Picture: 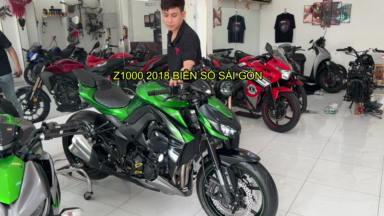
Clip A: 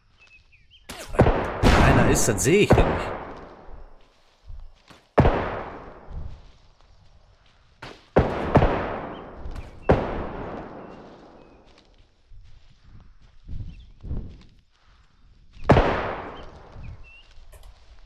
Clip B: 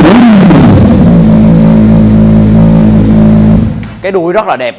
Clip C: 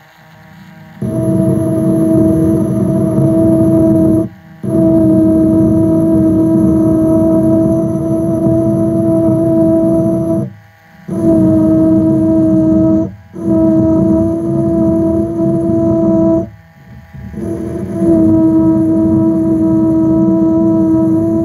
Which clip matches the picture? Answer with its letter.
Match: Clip B